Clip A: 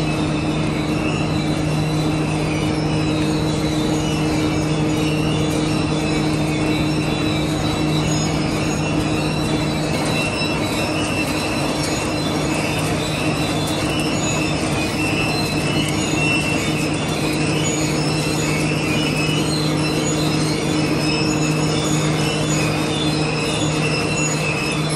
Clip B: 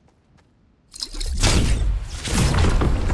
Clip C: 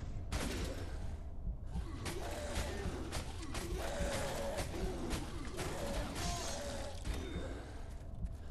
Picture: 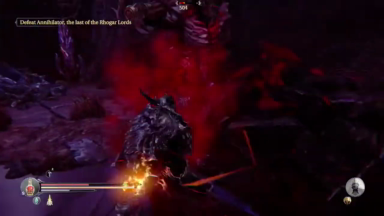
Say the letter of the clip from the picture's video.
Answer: C